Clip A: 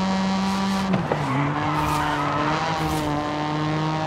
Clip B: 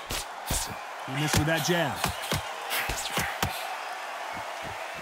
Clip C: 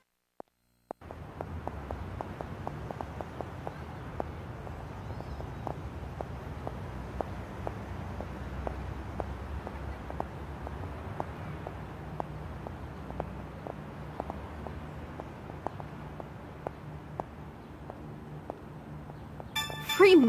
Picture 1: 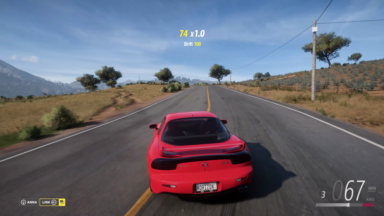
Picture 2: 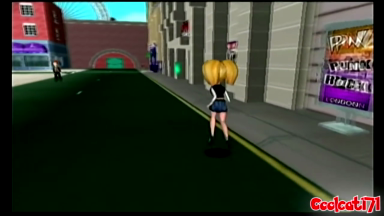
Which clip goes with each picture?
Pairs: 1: A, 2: C